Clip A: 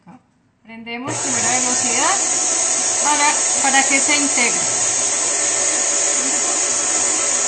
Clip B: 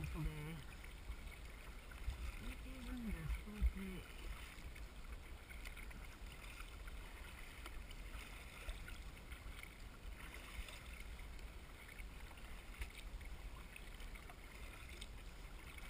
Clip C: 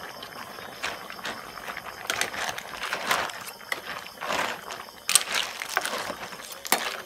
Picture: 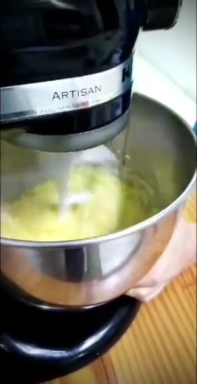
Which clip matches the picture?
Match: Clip A